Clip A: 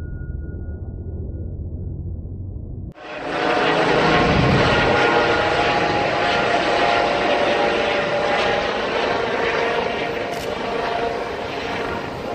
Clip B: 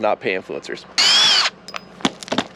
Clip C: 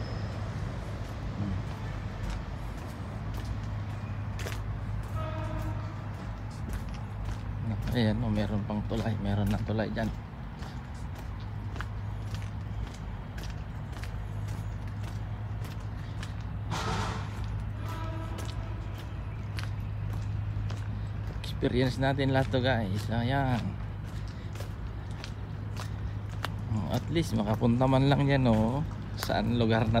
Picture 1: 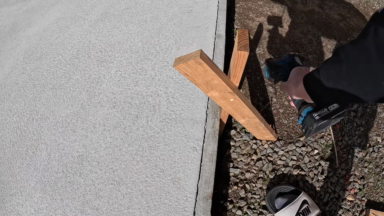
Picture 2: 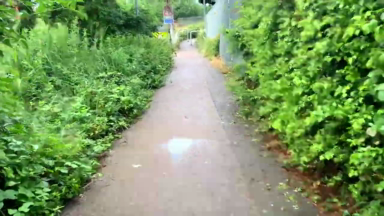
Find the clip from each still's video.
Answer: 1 B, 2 C